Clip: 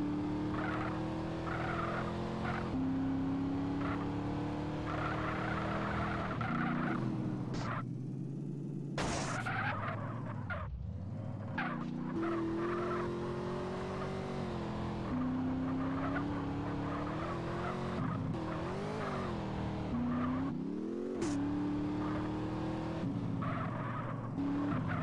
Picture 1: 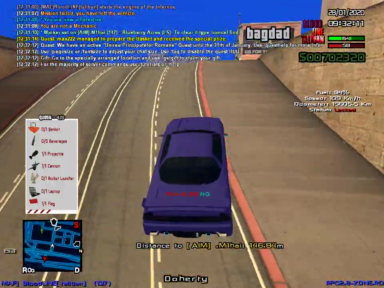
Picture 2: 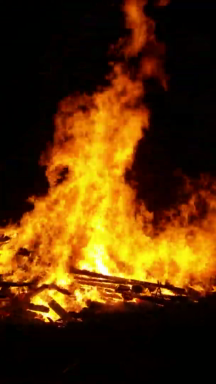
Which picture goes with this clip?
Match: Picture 1